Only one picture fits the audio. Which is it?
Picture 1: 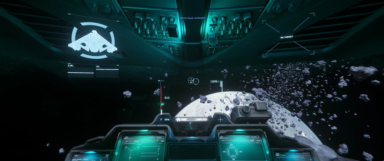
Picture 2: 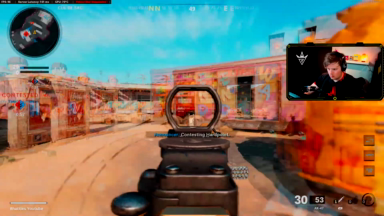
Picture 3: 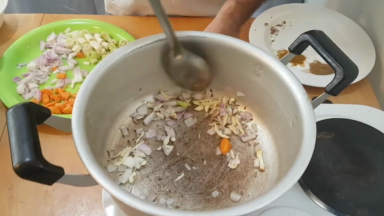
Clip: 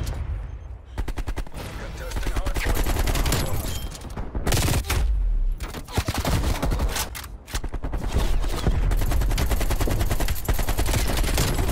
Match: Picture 2